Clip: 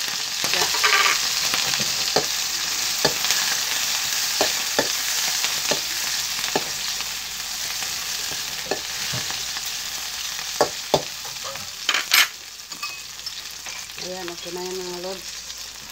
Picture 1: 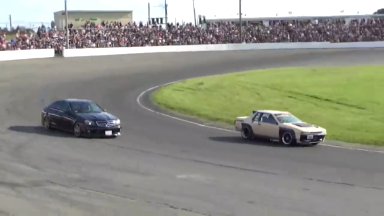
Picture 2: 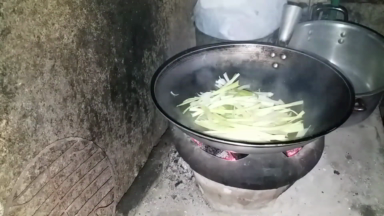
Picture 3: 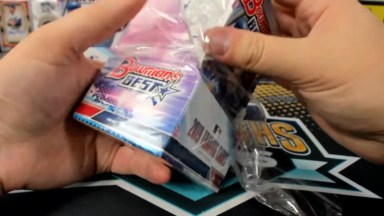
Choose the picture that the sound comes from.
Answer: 2